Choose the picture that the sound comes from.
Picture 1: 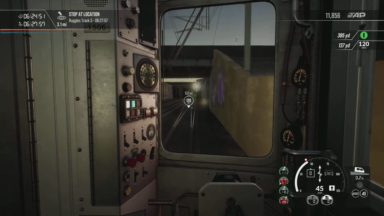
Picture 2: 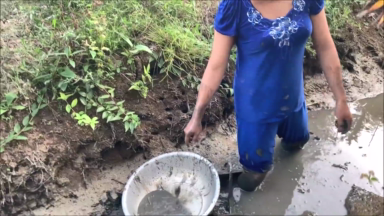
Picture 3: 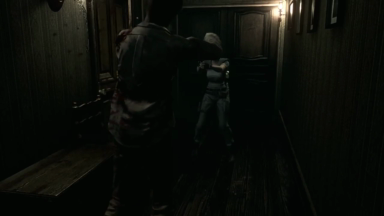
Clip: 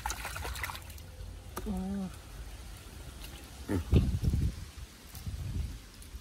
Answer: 2